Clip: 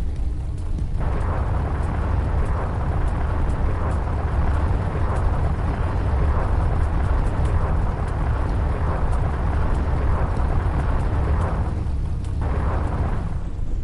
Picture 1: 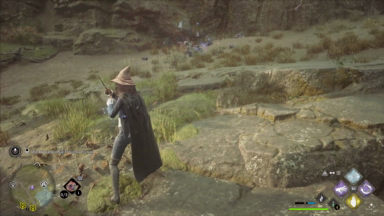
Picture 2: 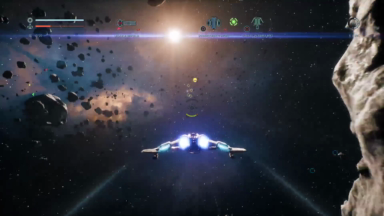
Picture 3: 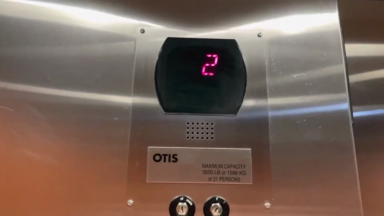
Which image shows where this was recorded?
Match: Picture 2